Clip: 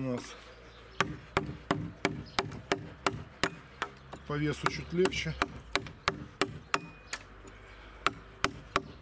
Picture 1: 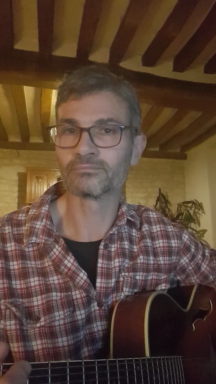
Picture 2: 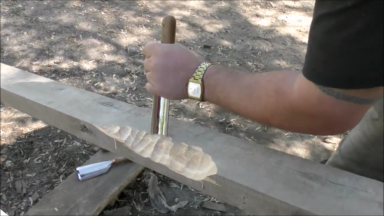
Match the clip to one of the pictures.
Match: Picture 2